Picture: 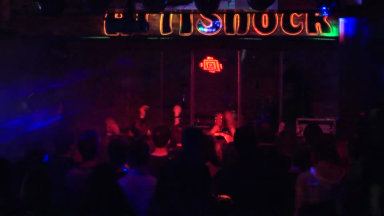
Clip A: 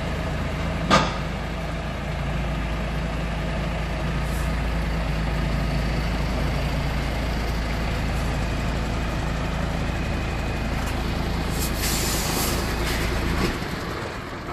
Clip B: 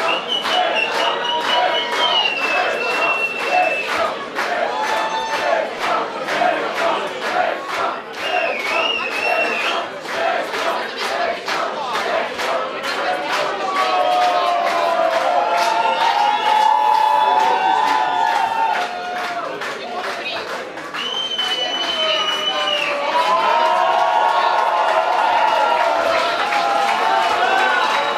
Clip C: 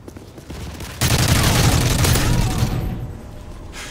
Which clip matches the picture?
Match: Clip B